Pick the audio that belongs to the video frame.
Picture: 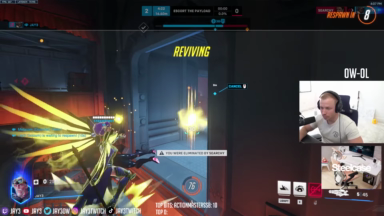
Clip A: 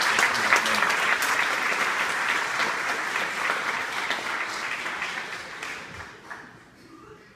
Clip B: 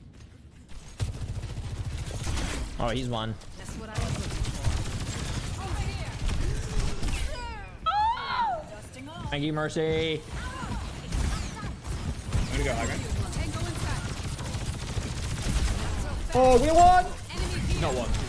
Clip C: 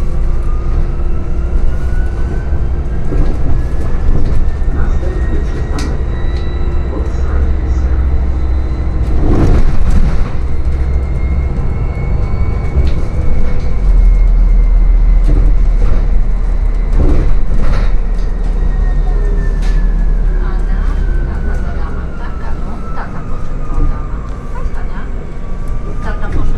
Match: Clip B